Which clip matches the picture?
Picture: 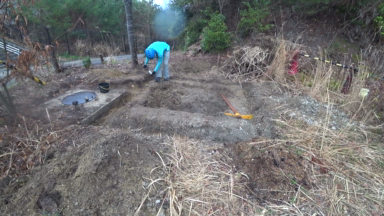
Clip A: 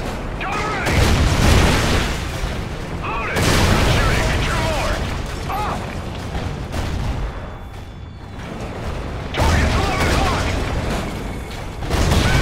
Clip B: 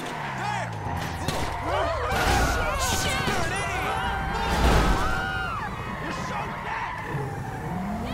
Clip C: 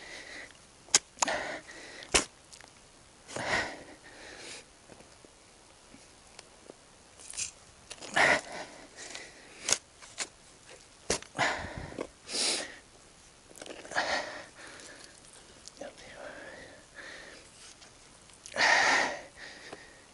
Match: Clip C